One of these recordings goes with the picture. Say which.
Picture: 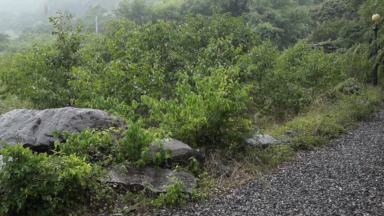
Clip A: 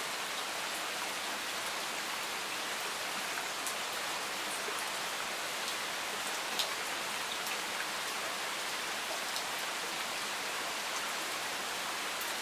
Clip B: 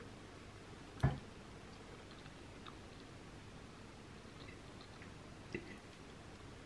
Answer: A